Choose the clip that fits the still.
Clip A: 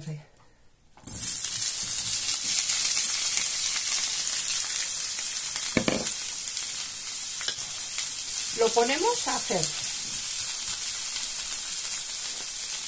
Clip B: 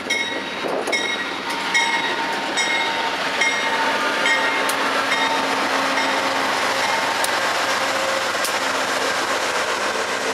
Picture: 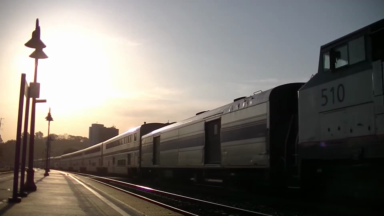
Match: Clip B